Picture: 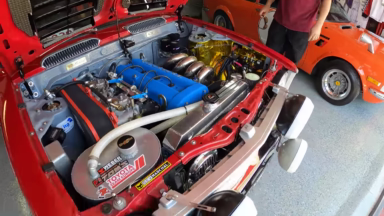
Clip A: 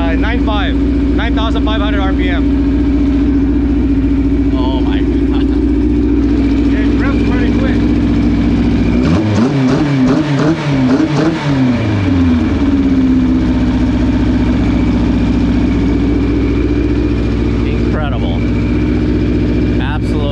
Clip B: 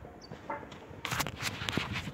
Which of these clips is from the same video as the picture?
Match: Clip A